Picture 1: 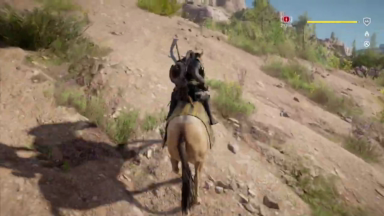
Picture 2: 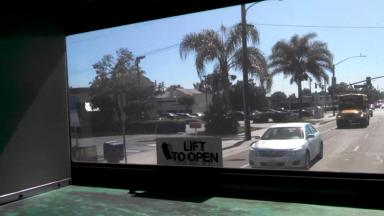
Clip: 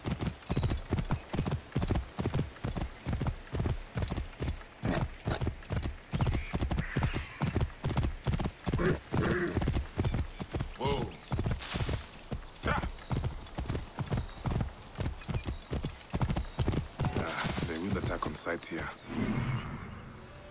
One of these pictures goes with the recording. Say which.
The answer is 1